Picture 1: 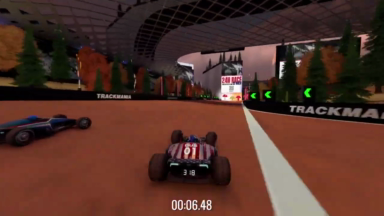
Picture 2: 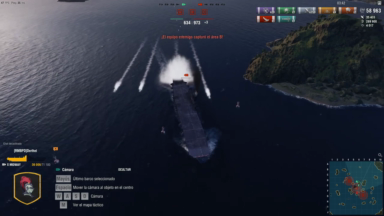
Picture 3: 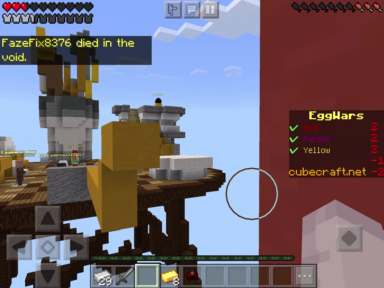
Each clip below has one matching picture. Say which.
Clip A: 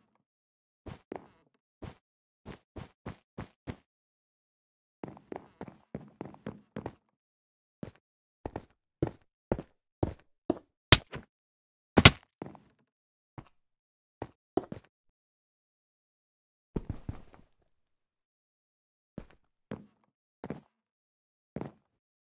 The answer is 3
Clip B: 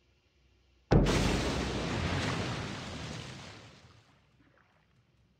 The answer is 2